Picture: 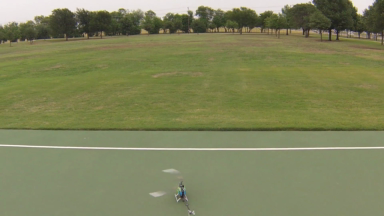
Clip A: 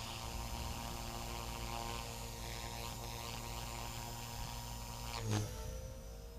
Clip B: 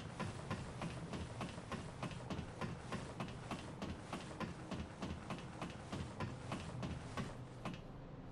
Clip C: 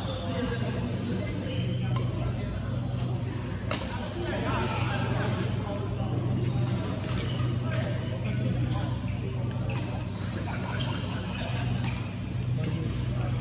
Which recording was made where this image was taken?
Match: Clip A